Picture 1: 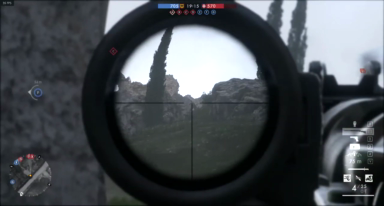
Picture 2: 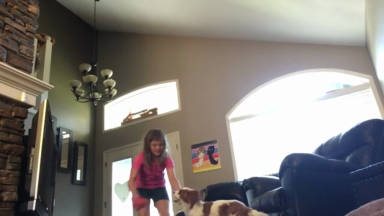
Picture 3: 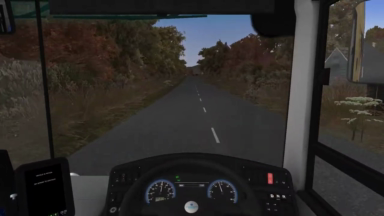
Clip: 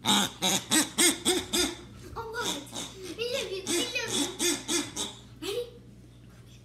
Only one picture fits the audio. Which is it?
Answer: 2